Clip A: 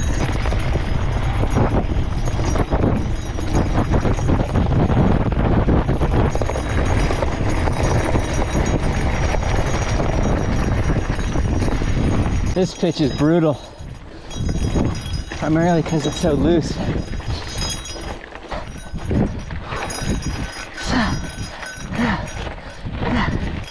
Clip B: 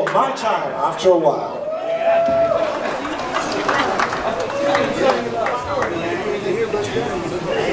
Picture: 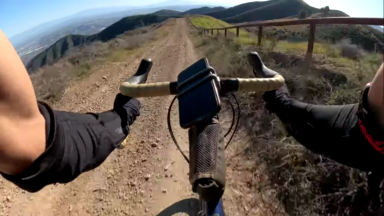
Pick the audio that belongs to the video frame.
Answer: A